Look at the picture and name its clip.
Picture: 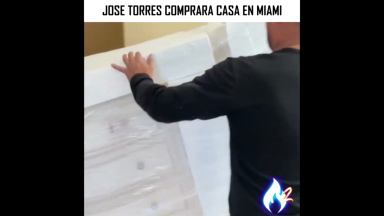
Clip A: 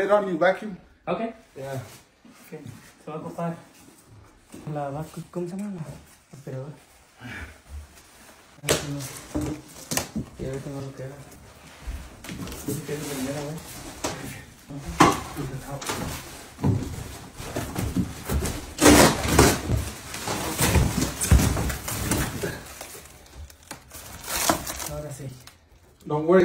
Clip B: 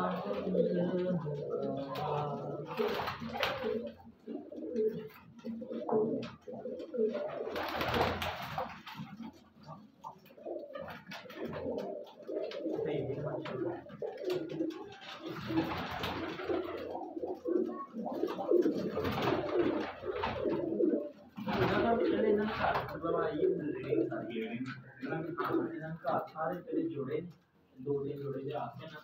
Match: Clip A